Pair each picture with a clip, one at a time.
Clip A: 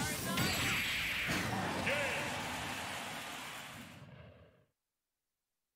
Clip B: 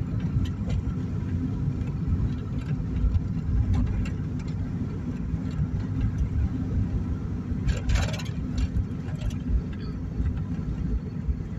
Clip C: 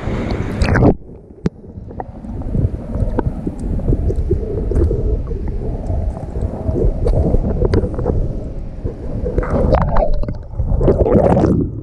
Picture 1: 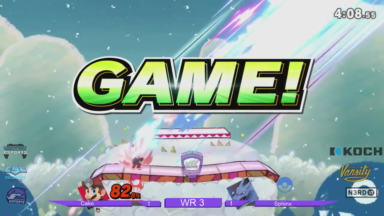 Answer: A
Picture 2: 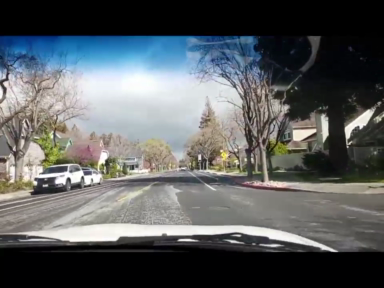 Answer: B